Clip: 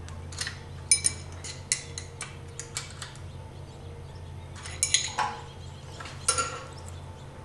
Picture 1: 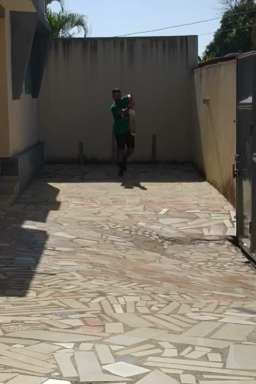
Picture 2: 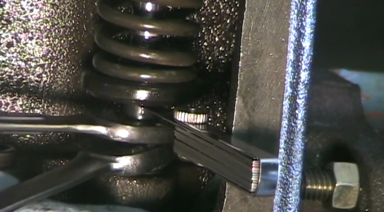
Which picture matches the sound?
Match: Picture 2